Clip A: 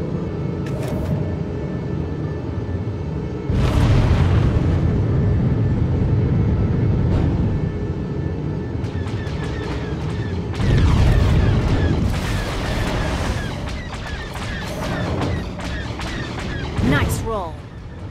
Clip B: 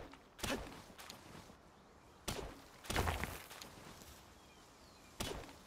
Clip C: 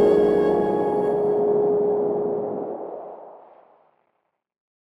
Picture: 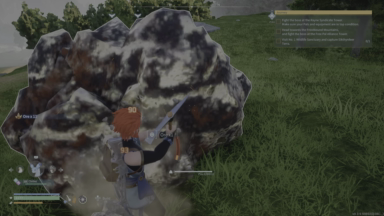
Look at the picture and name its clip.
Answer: B